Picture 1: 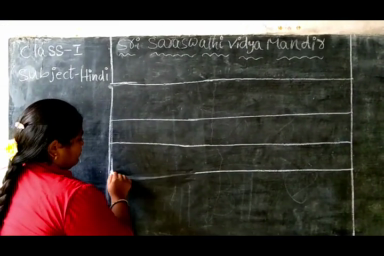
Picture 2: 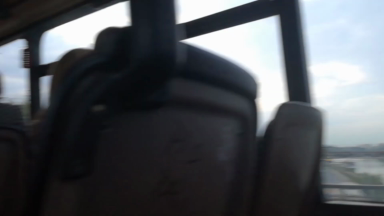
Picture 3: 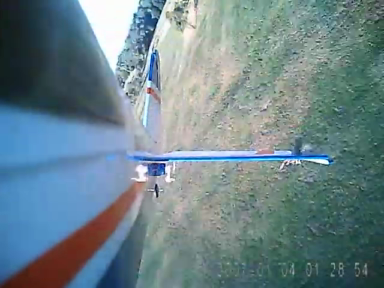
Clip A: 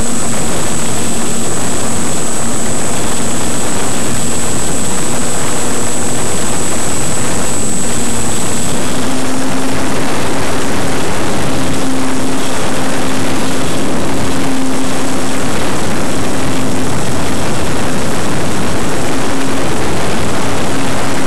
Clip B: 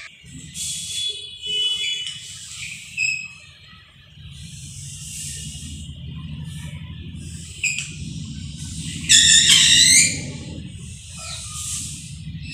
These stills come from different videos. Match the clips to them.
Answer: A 3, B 1